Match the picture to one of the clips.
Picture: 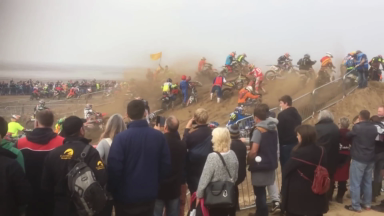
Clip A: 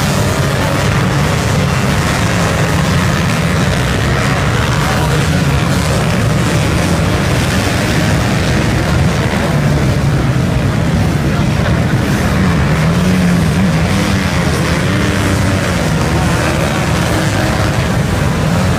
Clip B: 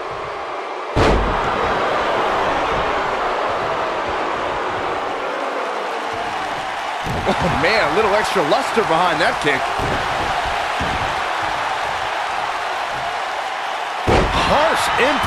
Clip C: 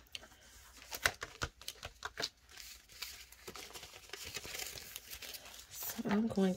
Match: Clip A